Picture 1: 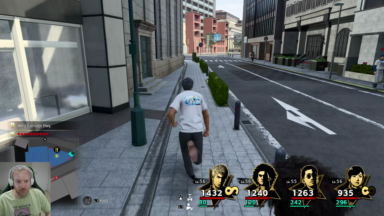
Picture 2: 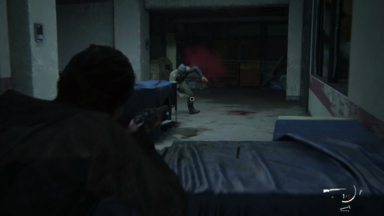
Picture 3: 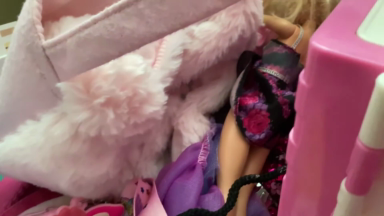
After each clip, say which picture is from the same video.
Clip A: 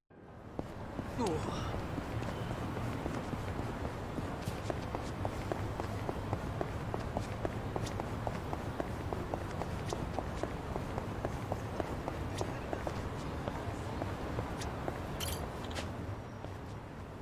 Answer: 1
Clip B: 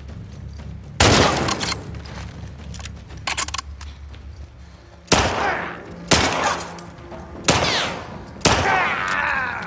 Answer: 2